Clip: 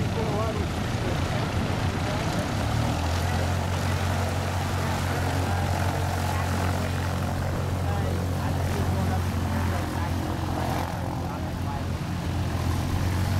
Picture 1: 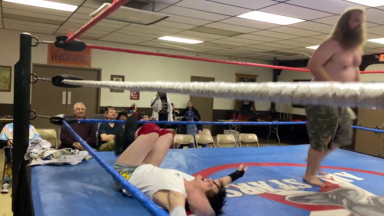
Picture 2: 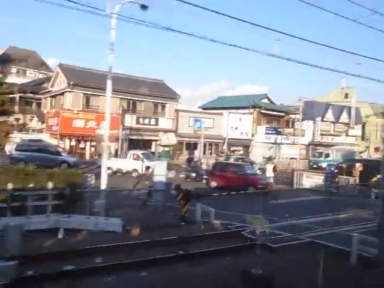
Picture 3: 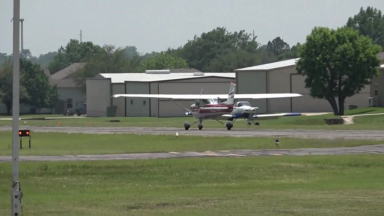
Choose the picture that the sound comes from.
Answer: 3